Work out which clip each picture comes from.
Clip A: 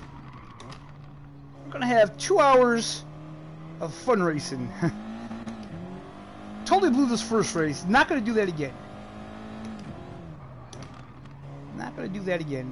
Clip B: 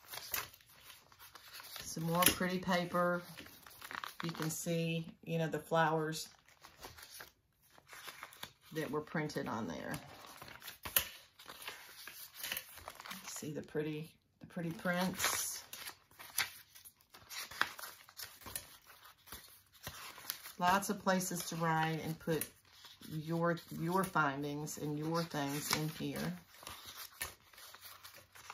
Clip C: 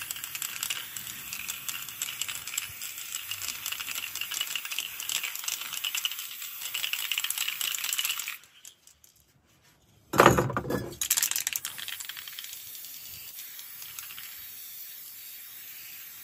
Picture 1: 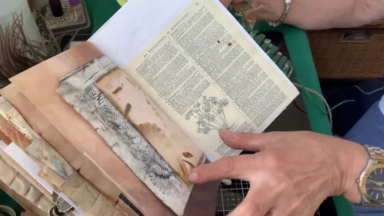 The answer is B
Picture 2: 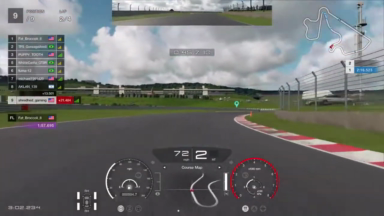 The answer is A